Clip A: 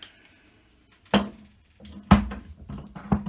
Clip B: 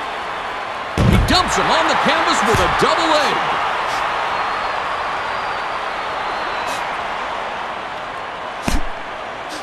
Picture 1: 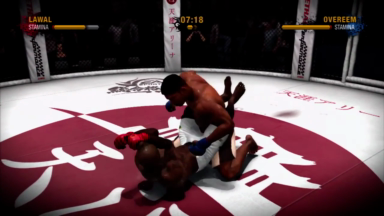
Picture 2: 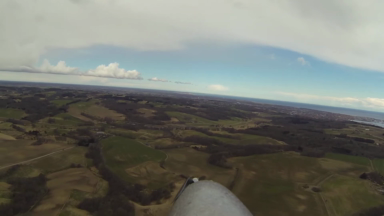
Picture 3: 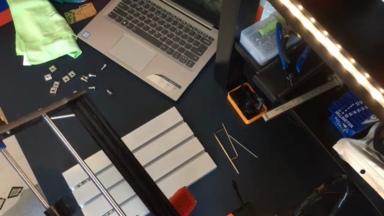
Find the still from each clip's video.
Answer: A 3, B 1